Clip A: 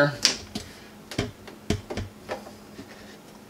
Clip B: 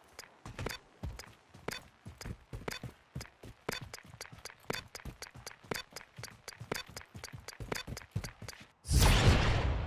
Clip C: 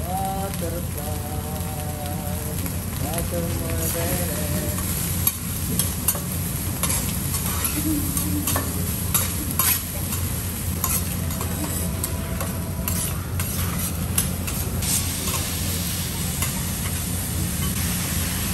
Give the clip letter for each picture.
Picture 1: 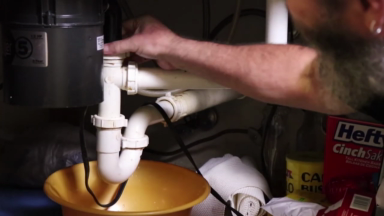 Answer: A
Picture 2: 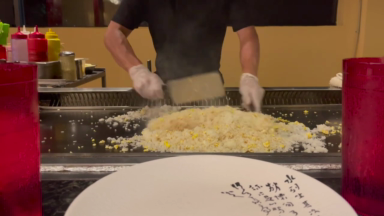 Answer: C